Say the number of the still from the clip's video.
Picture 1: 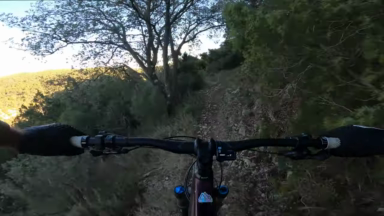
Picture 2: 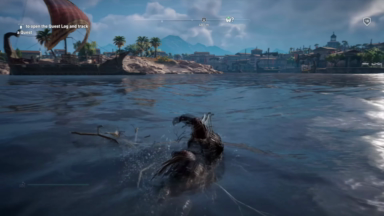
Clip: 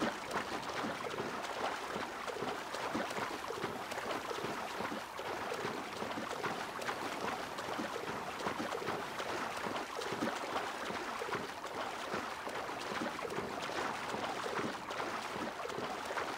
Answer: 2